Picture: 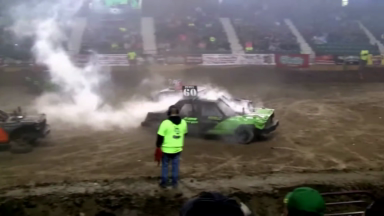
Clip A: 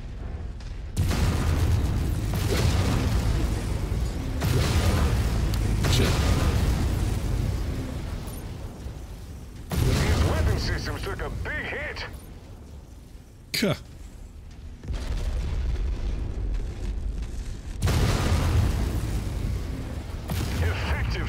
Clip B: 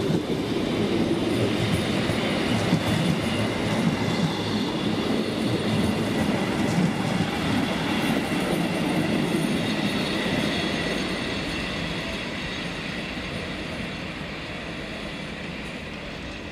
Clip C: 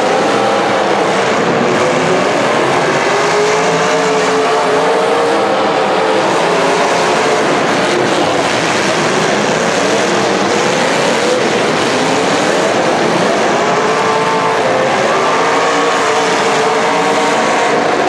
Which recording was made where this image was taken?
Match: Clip C